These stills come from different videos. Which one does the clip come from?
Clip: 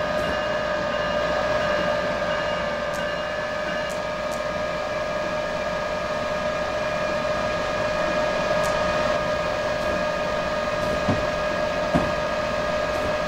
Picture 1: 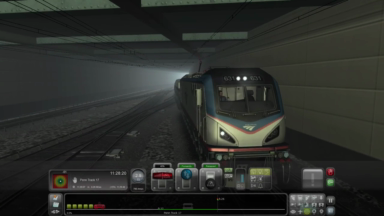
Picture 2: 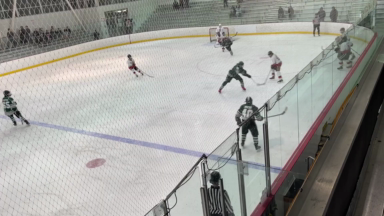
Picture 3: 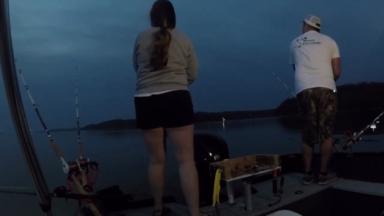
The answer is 1